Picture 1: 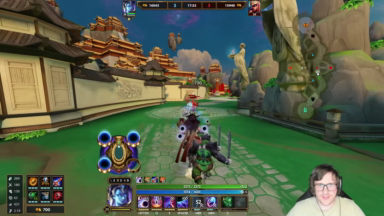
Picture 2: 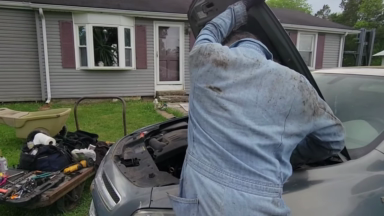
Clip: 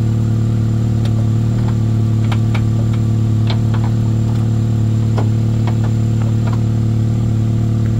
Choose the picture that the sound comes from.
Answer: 2